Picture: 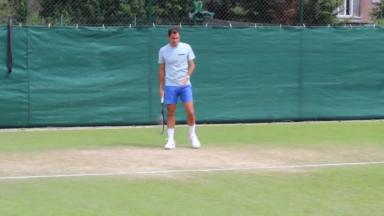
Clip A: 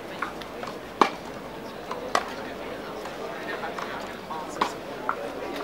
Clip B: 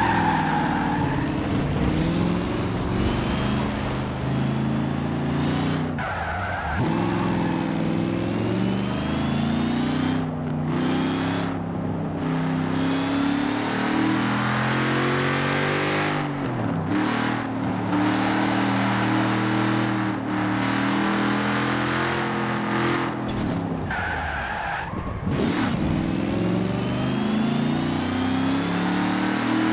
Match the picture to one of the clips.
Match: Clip A